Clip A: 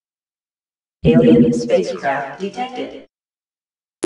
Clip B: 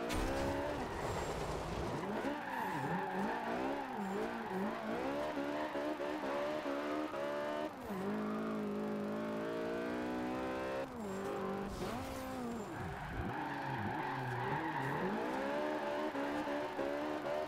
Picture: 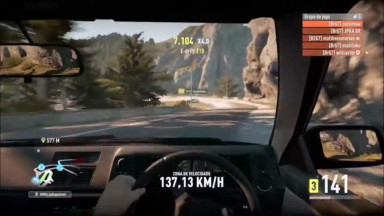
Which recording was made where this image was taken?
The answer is B